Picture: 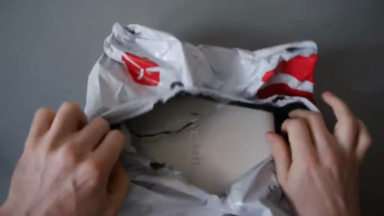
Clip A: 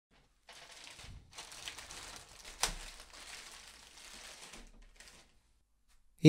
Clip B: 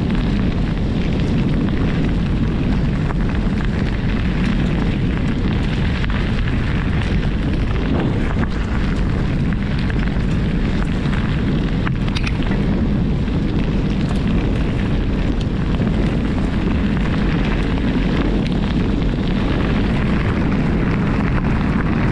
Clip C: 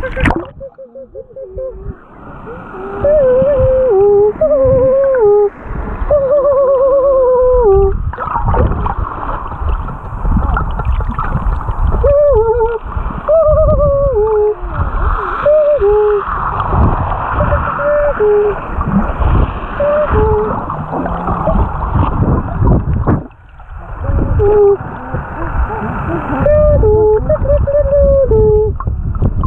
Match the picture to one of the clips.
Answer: A